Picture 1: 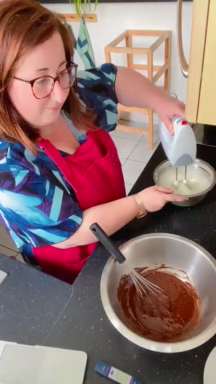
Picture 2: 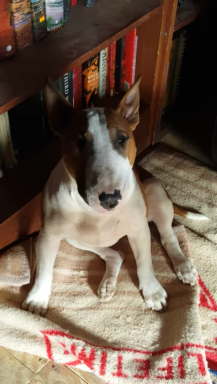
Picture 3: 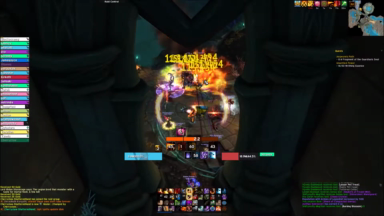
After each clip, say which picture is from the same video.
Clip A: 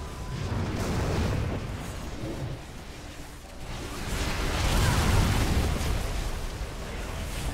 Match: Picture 3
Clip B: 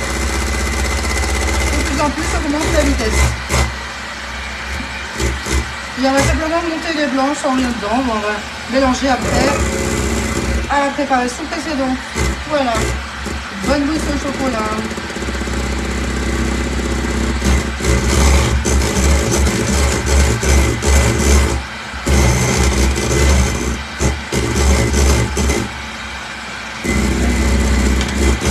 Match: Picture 1